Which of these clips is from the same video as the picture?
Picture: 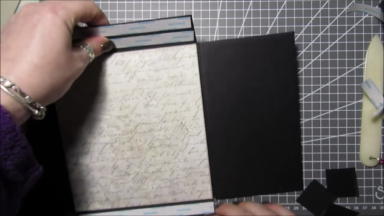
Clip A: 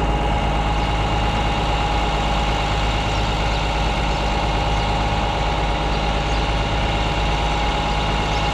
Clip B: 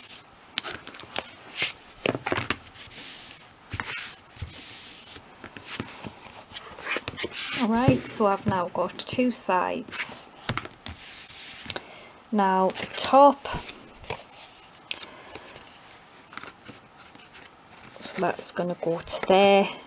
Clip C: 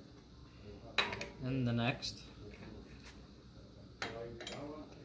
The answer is B